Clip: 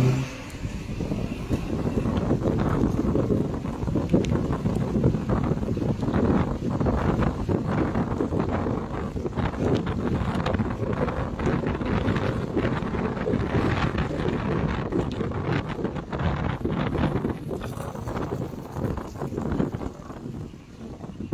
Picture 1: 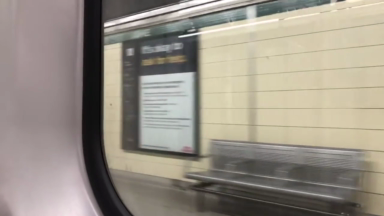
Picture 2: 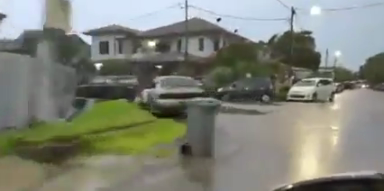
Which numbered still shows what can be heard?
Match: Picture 2